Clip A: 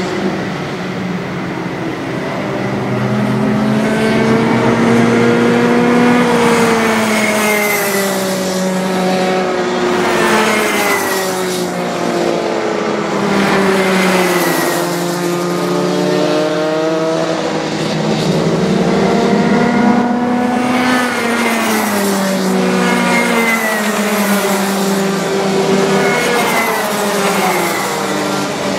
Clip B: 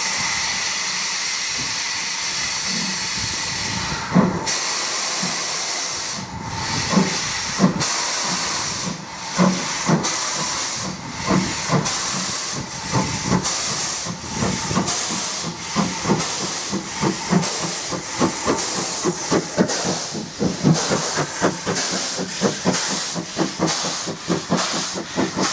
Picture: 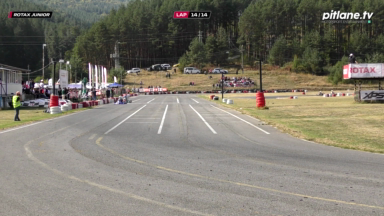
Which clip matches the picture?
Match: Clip A